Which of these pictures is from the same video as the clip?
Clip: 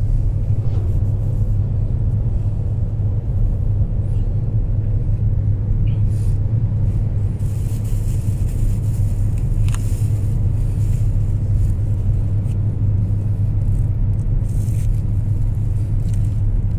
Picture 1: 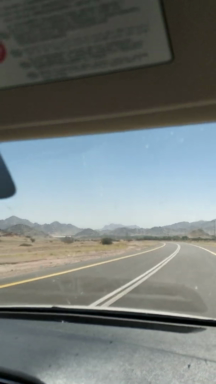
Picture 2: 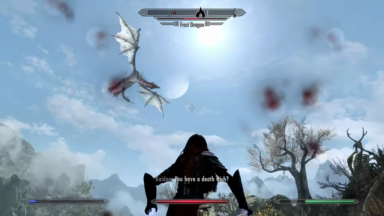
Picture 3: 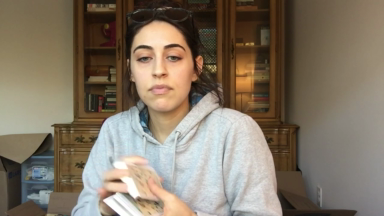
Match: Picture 1